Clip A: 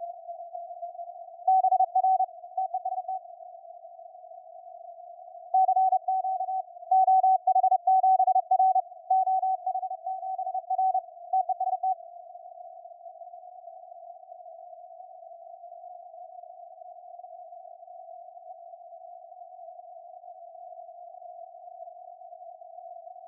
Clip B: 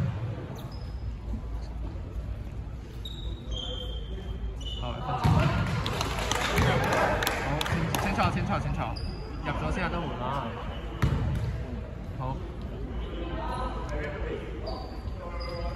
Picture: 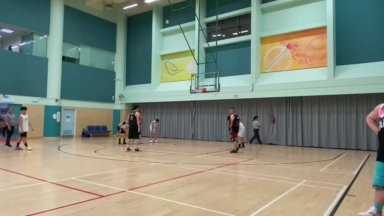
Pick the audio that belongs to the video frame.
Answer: B